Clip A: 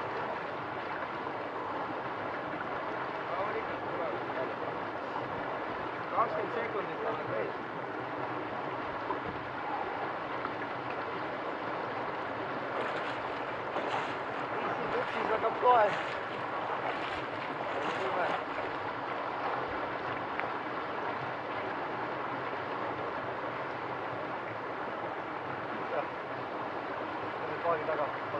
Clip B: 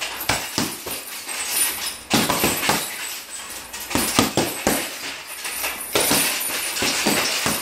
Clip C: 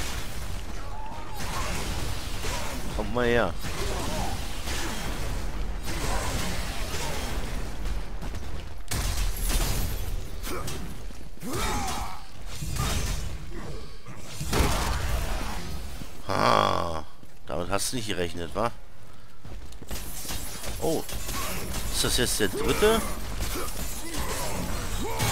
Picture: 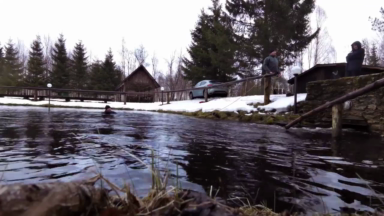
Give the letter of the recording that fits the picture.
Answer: A